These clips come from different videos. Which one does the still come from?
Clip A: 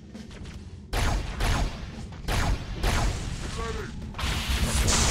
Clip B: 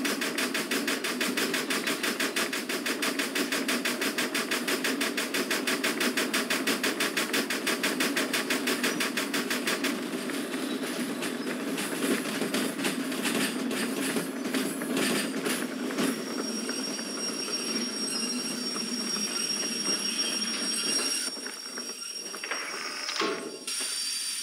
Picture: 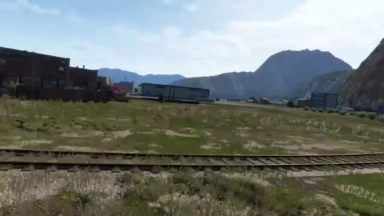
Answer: B